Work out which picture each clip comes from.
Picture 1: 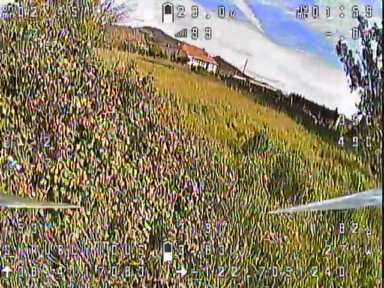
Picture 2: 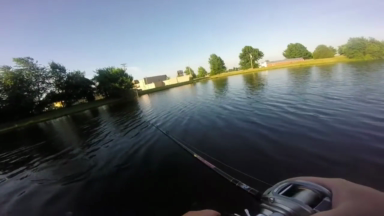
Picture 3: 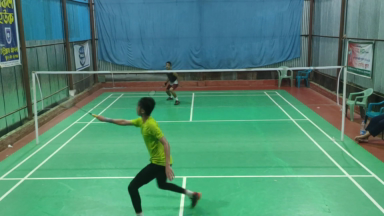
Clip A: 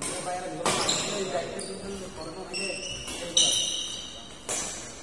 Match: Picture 3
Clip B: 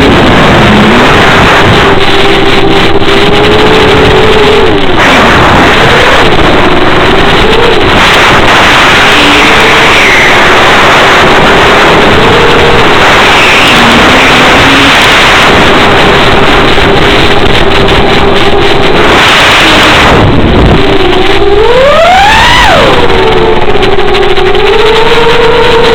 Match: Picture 1